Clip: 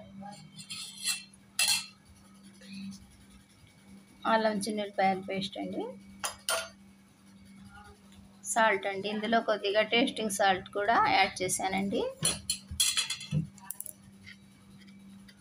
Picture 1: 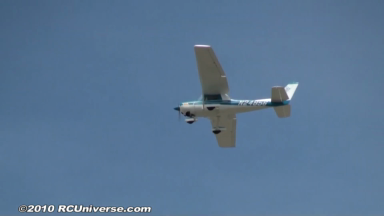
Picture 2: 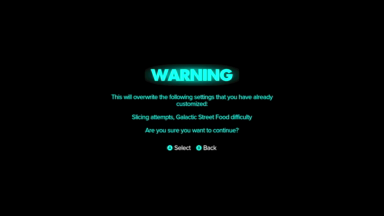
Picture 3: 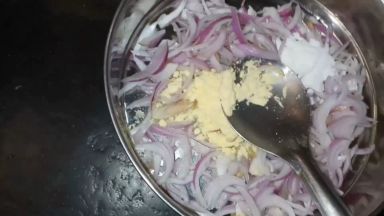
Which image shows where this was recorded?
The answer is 3